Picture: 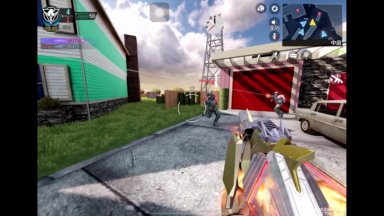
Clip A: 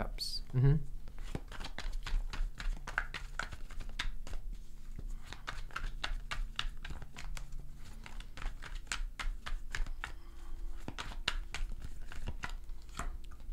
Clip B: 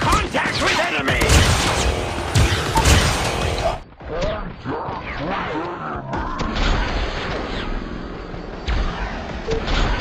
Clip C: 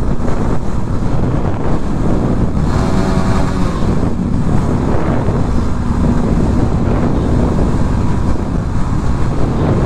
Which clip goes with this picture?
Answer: B